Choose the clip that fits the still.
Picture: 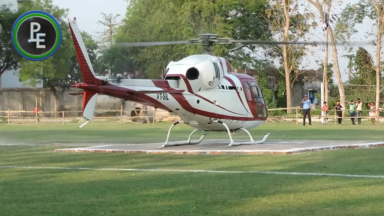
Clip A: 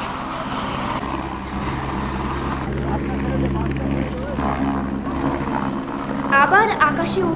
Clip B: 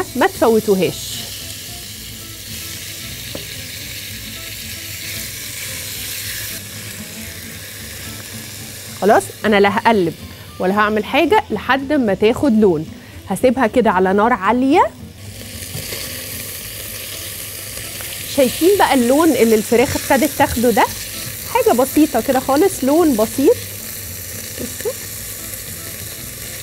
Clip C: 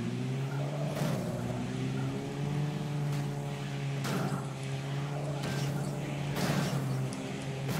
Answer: A